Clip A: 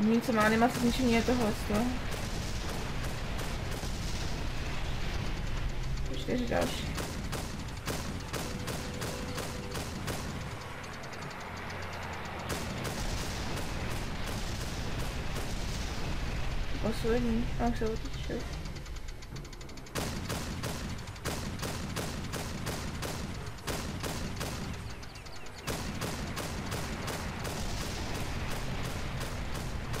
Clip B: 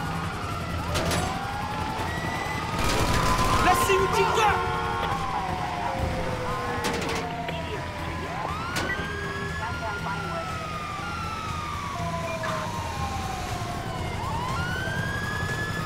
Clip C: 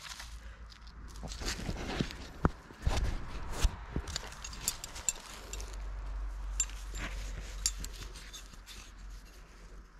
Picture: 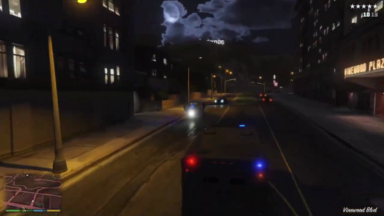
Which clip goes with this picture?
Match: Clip B